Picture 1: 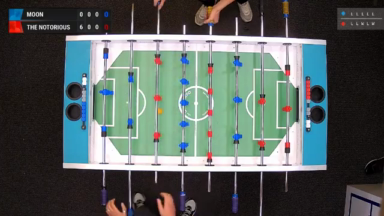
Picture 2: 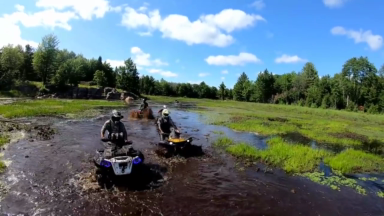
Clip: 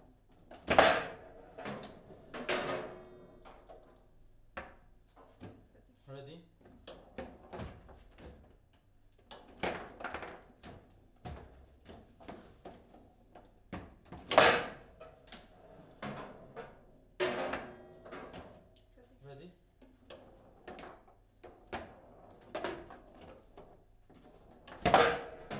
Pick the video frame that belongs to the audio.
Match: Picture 1